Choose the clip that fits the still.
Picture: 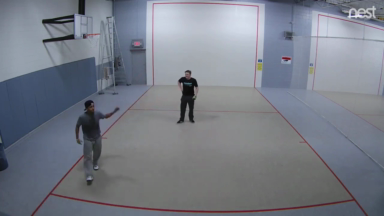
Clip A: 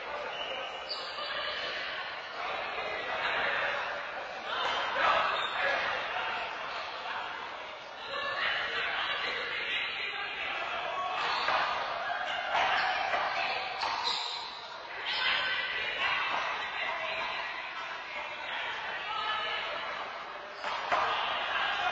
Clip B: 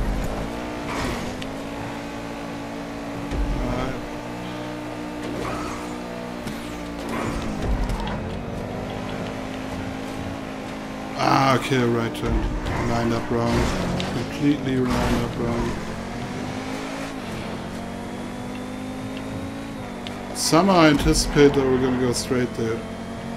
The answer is A